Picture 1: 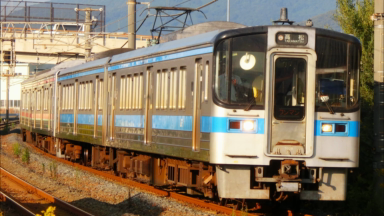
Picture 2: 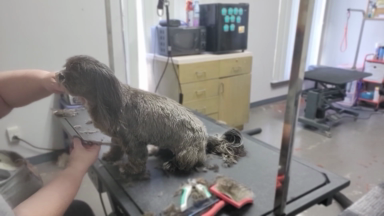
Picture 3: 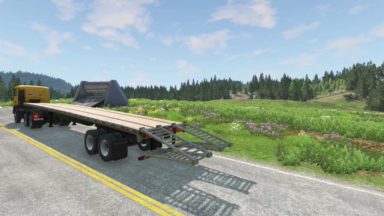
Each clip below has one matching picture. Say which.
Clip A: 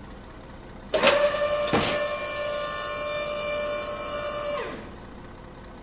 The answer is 3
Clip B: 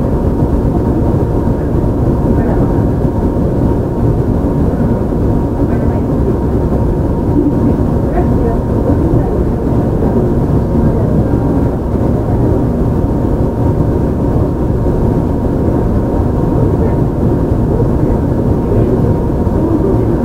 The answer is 1